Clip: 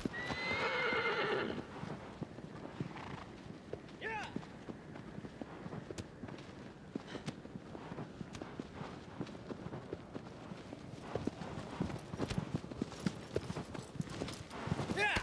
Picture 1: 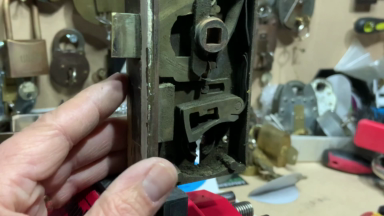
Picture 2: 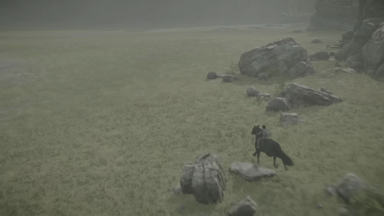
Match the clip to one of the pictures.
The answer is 2